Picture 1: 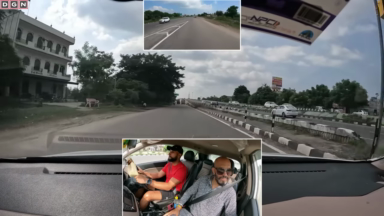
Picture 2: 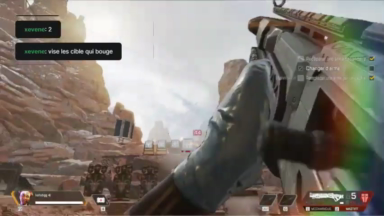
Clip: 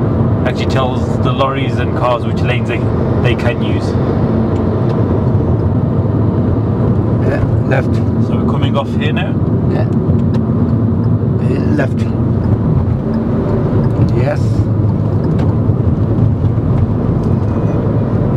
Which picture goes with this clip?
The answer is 1